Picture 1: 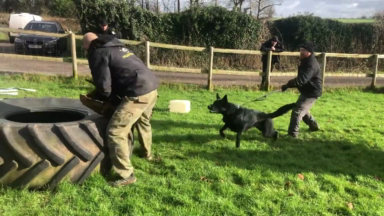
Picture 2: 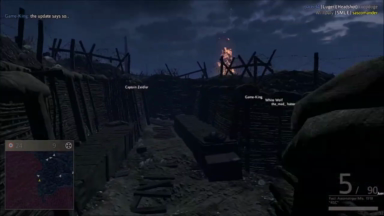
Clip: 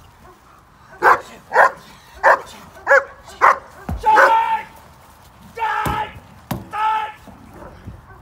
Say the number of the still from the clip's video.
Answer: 1